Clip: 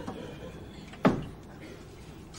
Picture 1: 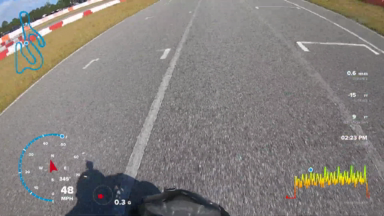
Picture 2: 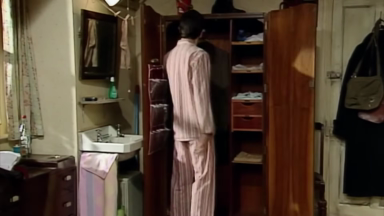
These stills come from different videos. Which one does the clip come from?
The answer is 2